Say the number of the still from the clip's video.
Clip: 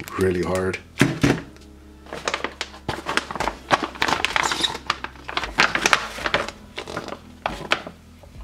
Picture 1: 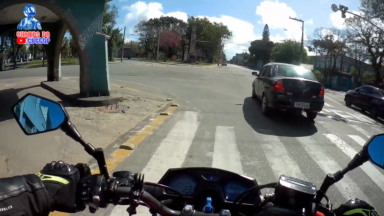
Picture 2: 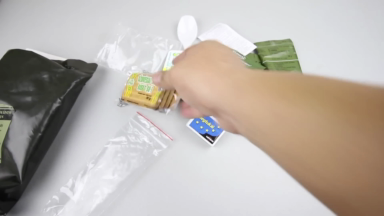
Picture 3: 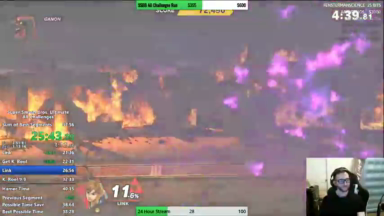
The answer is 2